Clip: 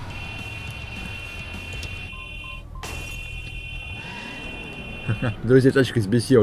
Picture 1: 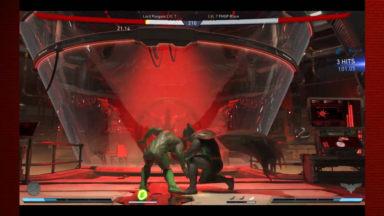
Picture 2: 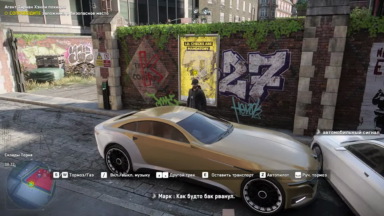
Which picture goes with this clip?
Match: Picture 2